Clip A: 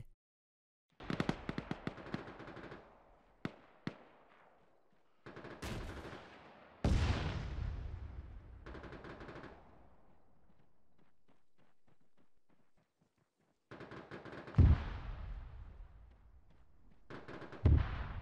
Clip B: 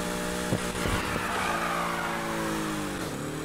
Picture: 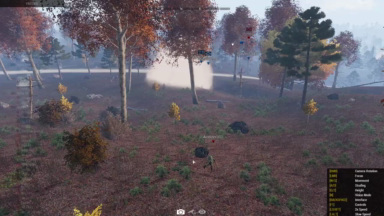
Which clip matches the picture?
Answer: A